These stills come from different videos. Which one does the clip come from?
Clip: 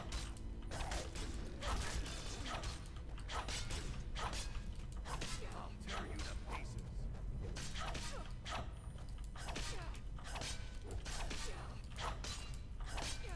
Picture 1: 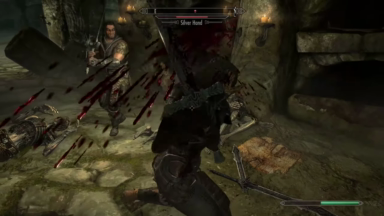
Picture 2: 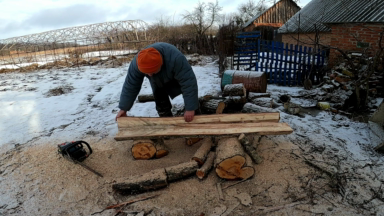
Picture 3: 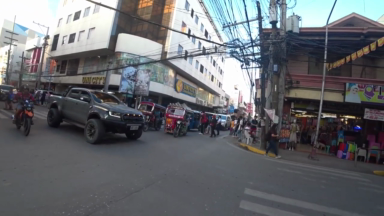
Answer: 1